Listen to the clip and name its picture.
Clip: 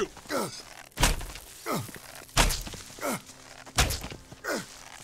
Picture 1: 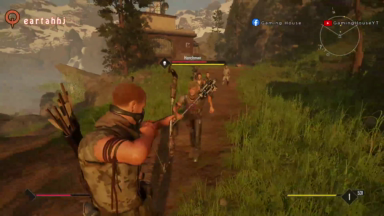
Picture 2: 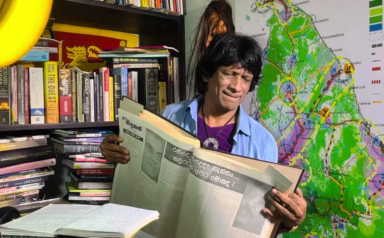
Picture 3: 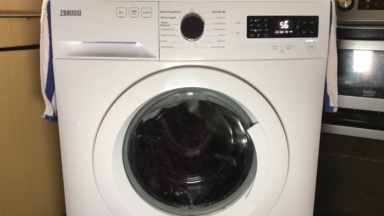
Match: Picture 1